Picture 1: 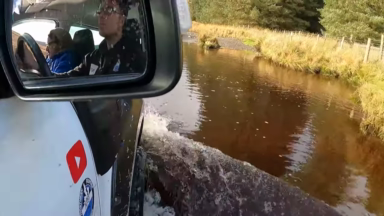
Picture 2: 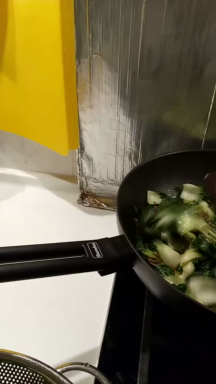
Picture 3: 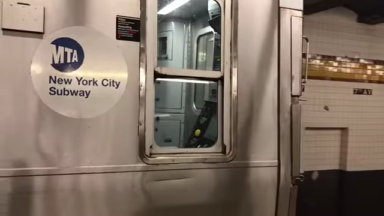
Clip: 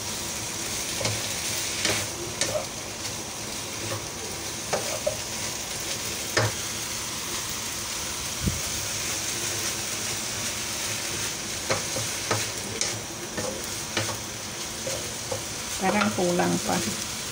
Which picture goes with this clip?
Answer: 2